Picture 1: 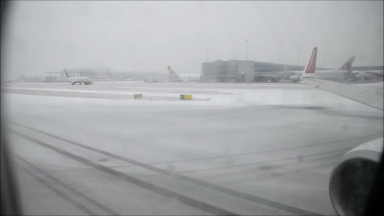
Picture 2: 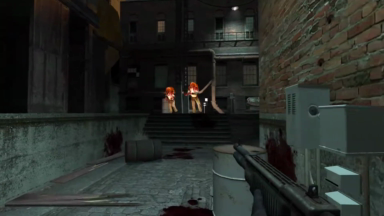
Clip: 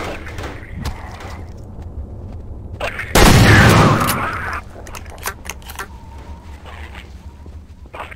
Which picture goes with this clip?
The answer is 2